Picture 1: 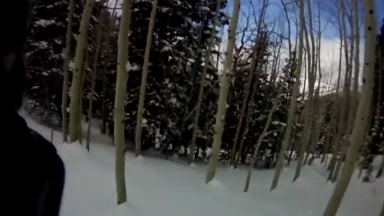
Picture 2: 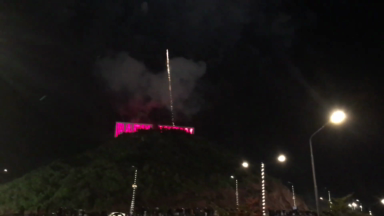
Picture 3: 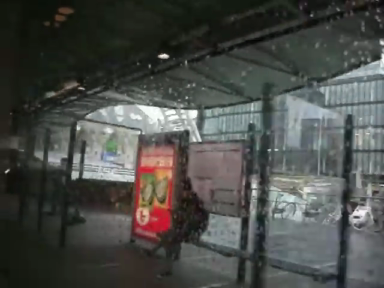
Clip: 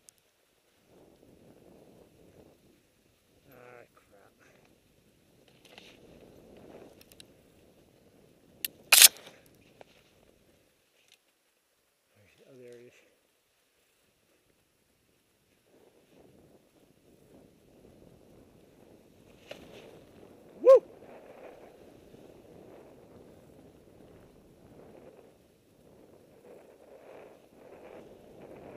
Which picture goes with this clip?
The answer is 1